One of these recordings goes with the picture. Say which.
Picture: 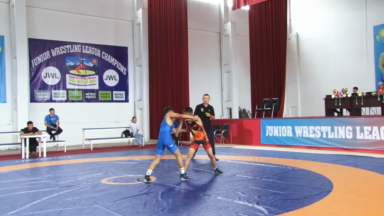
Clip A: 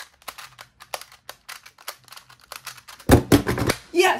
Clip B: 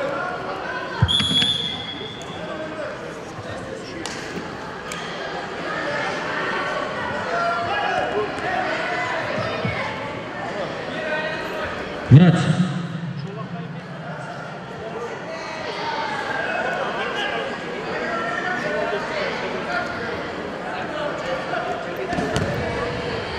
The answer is B